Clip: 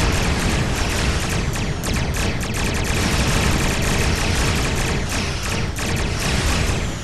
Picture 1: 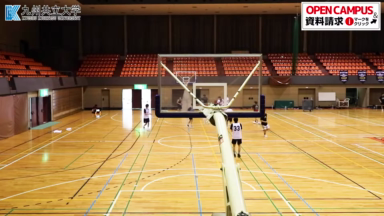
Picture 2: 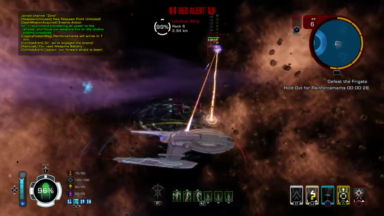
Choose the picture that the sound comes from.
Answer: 2